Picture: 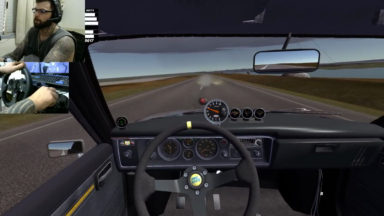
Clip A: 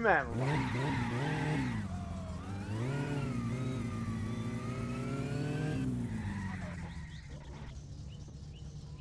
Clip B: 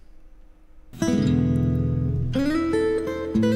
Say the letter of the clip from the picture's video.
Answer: A